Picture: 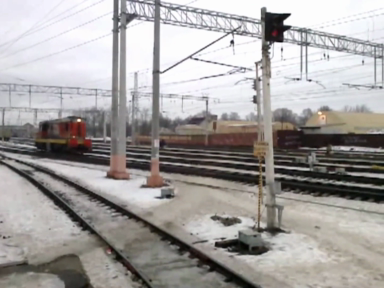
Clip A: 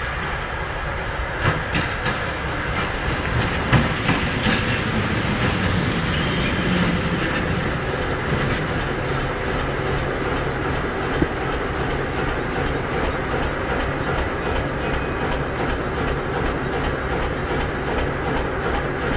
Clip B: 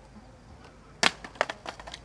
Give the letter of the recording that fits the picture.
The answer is A